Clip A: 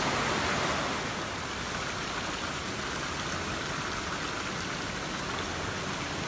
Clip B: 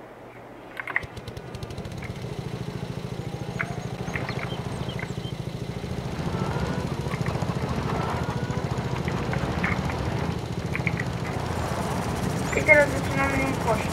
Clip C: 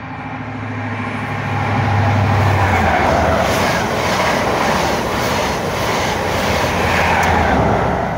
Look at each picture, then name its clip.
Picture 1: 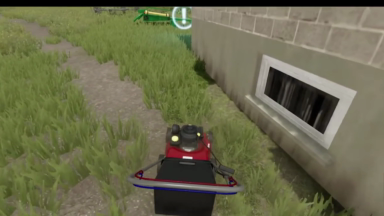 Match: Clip B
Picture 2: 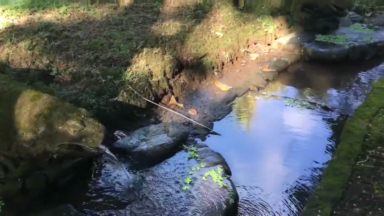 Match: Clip A